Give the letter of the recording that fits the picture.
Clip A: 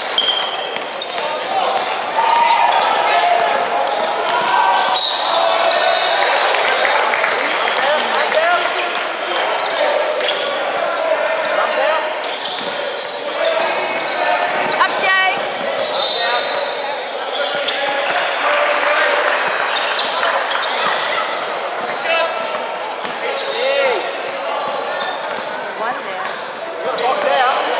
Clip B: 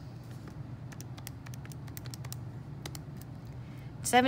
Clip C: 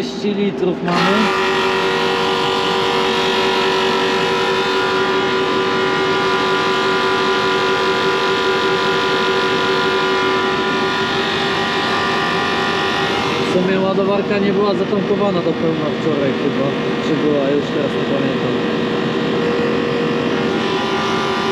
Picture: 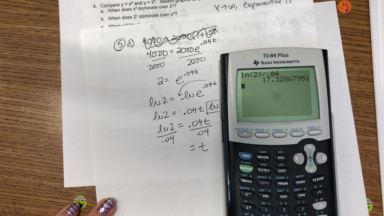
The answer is B